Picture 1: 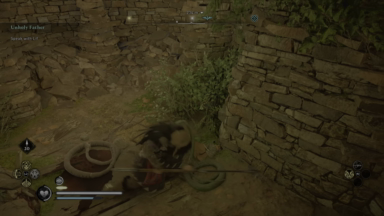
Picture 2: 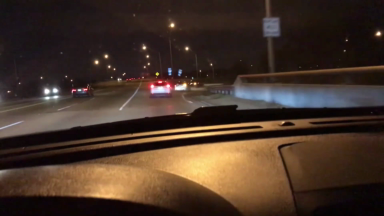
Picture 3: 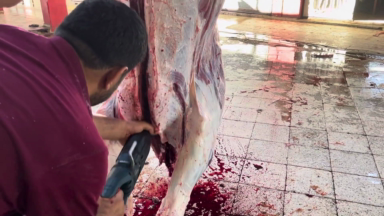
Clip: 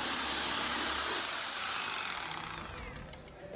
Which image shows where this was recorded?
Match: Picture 3